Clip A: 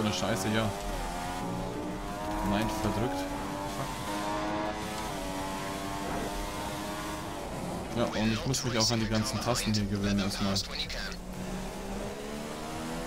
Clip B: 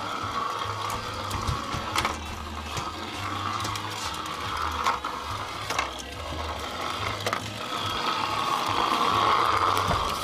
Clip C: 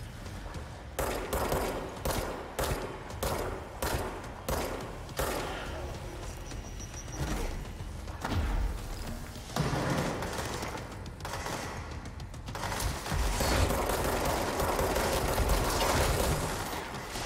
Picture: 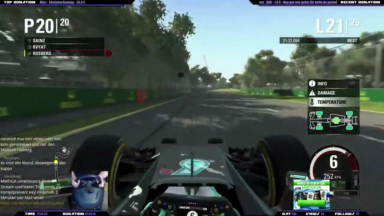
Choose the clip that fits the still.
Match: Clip A